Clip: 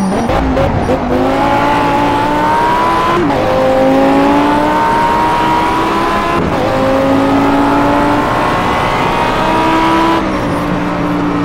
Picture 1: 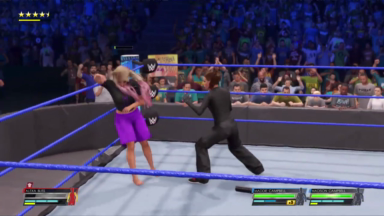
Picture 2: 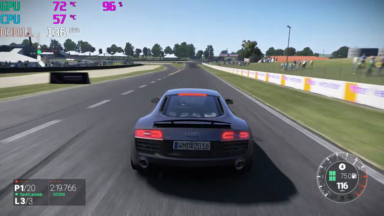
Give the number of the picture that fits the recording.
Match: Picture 2